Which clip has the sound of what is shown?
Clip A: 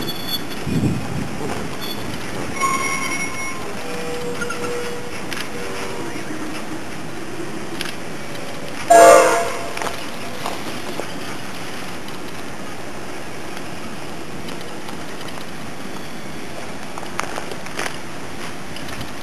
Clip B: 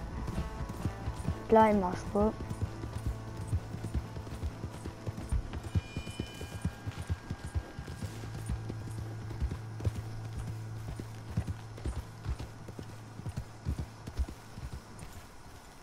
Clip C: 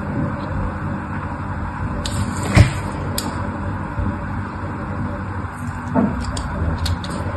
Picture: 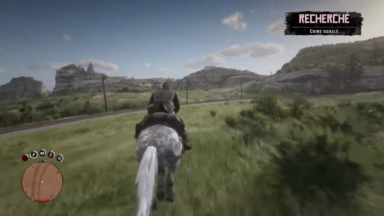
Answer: B